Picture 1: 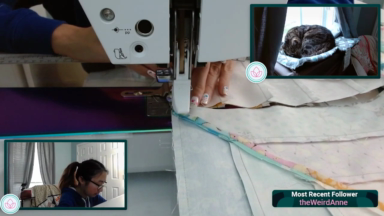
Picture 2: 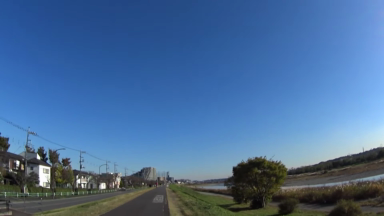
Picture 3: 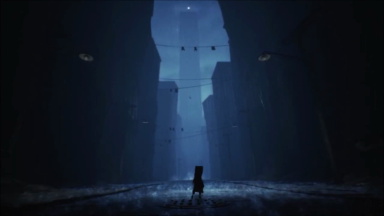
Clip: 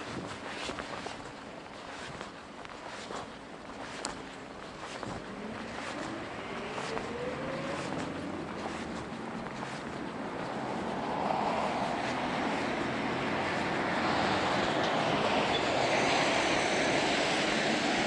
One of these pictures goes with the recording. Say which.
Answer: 2